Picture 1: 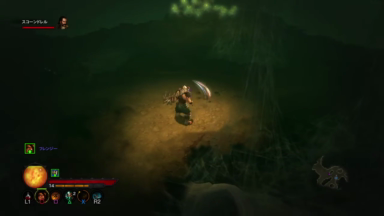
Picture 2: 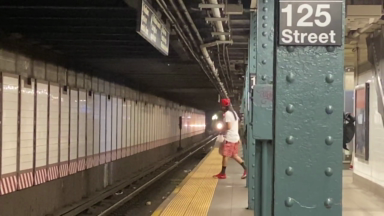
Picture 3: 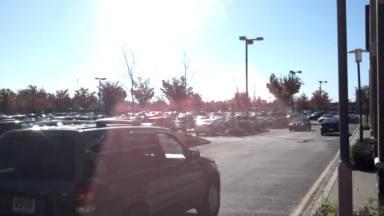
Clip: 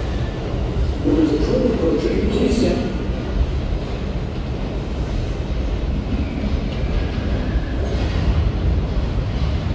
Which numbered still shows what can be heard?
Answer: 2